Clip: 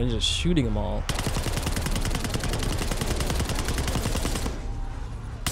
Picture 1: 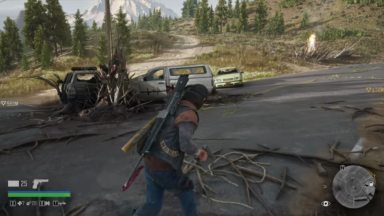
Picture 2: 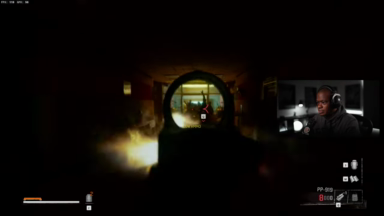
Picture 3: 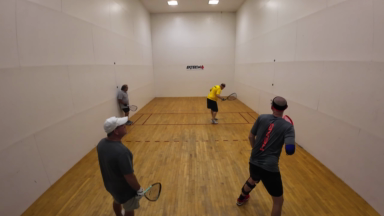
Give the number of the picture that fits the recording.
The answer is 2